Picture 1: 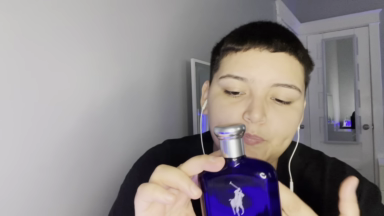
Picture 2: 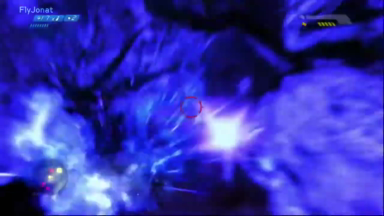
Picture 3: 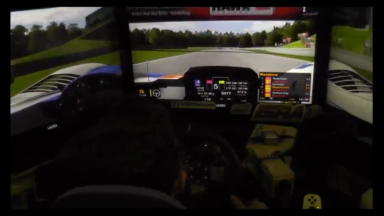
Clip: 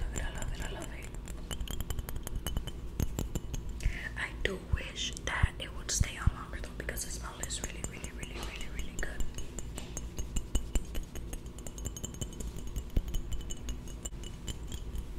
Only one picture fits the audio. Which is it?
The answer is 1